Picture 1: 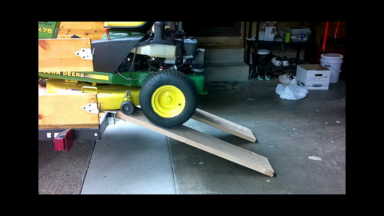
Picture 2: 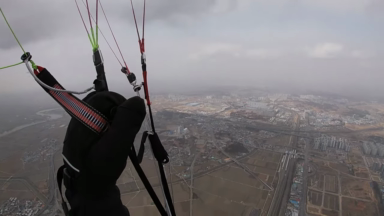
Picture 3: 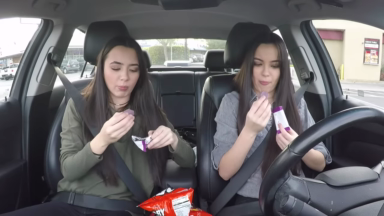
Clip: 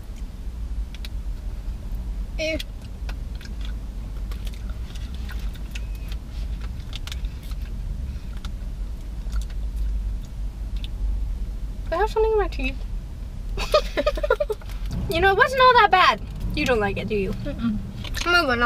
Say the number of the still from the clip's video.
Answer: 3